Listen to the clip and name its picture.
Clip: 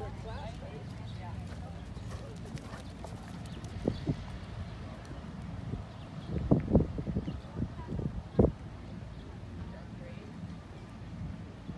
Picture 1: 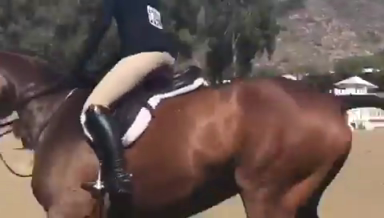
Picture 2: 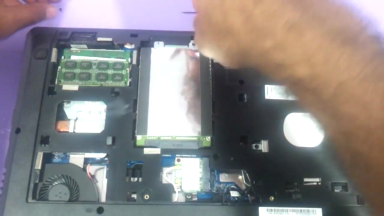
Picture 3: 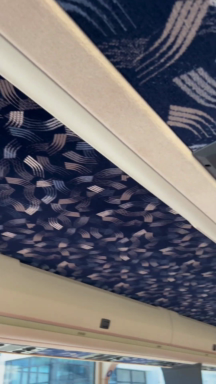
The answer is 1